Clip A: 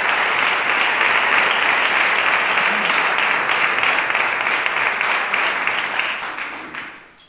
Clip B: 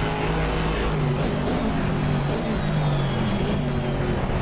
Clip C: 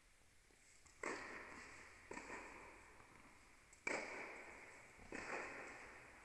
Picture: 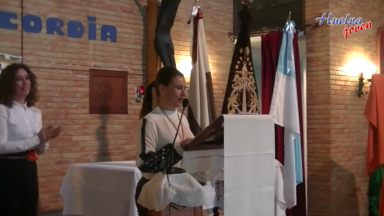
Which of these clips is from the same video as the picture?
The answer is A